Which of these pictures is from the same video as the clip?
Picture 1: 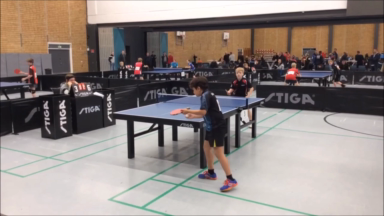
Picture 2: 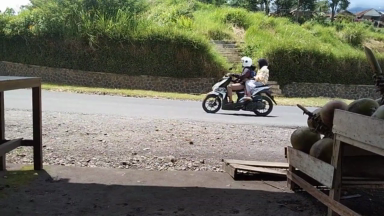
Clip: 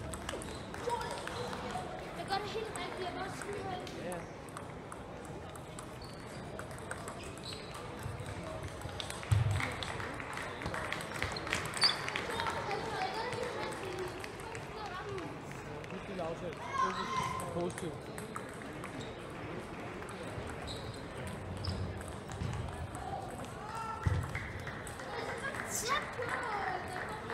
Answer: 1